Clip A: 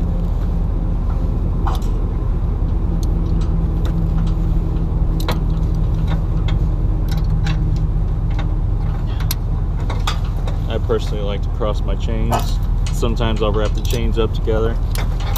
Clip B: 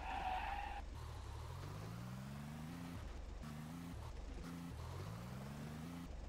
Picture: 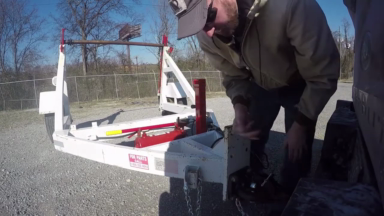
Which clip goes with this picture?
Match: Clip A